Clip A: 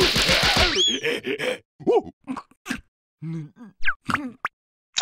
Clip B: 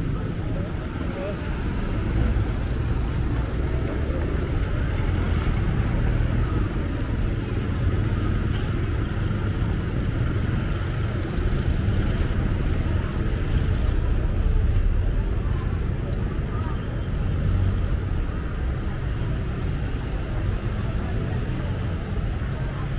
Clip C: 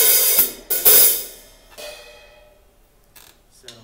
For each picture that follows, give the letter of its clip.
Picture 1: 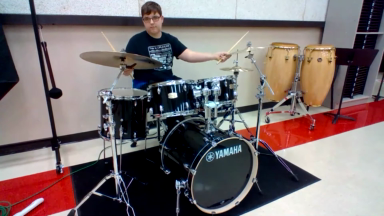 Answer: C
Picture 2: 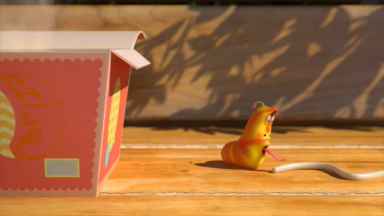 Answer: A